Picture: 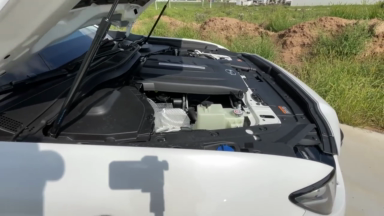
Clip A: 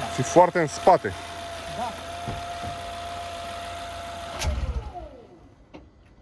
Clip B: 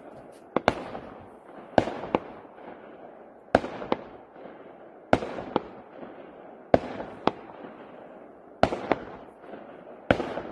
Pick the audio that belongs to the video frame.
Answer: A